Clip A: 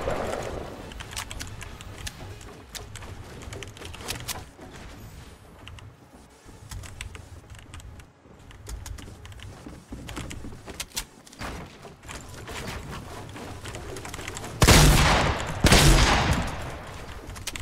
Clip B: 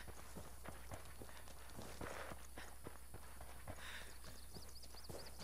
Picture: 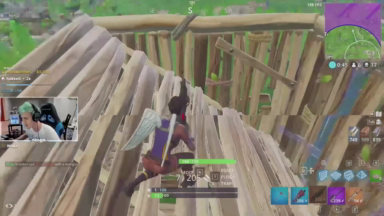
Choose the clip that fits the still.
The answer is A